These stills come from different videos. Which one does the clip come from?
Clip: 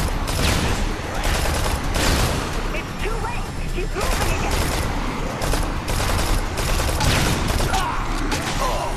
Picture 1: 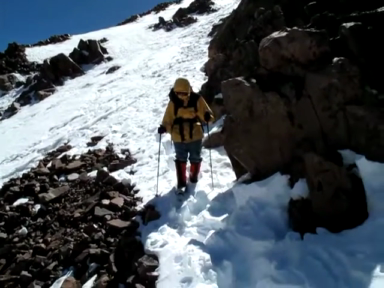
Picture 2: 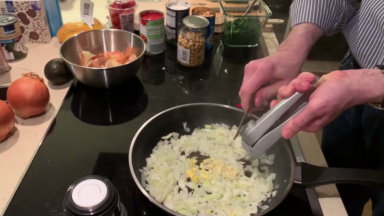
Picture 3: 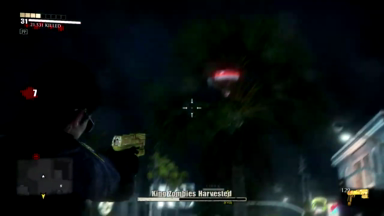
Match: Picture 3